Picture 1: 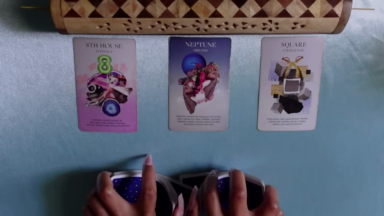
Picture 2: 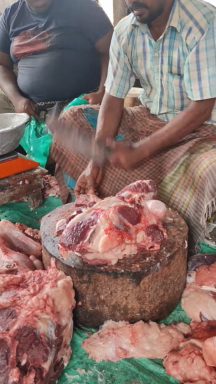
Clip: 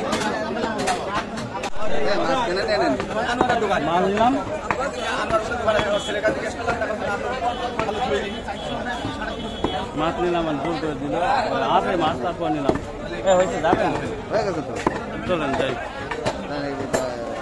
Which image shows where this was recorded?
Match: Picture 2